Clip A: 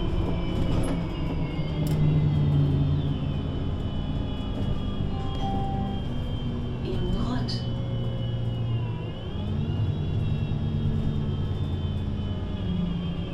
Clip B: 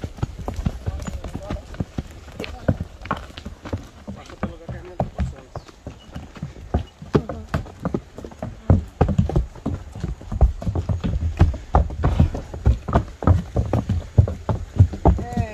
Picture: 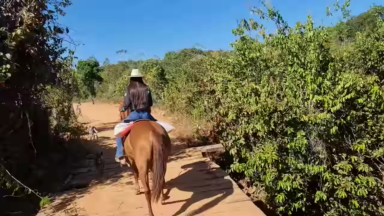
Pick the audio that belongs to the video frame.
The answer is B